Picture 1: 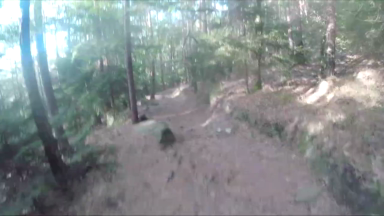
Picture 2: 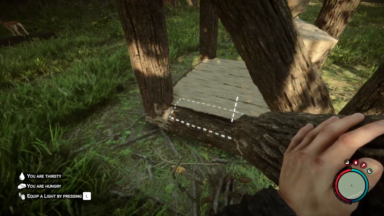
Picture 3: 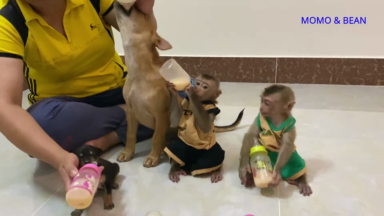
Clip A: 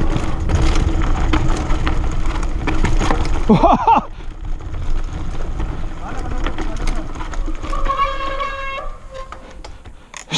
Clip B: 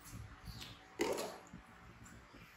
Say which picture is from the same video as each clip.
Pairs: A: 1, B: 3